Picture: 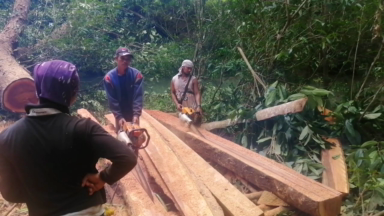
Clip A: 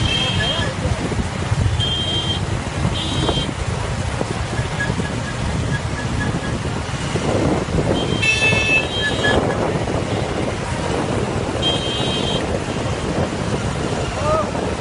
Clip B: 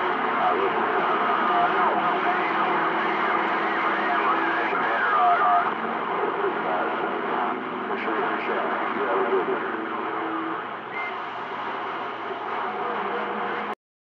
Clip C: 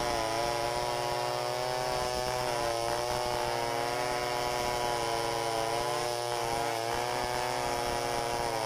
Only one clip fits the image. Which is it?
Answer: C